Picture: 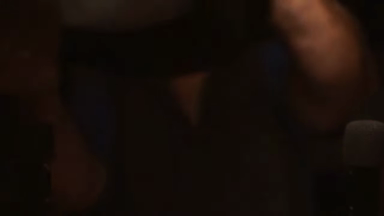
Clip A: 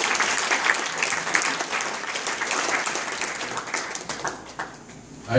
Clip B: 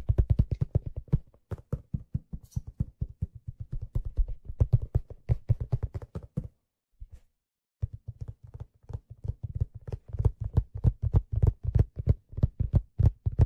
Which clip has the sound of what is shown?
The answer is B